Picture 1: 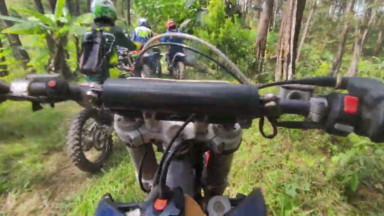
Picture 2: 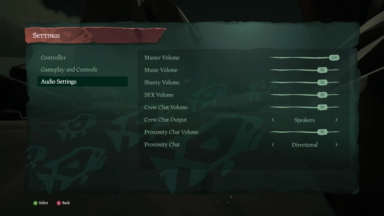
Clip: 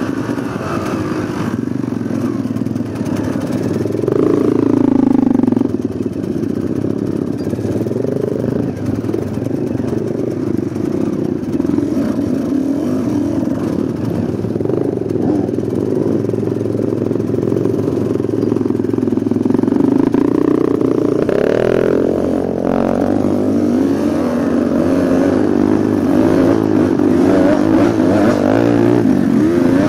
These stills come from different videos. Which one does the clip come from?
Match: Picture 1